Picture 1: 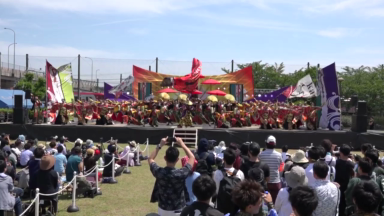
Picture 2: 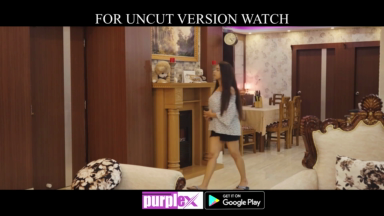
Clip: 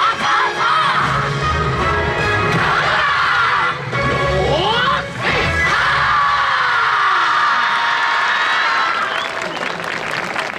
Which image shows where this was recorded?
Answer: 1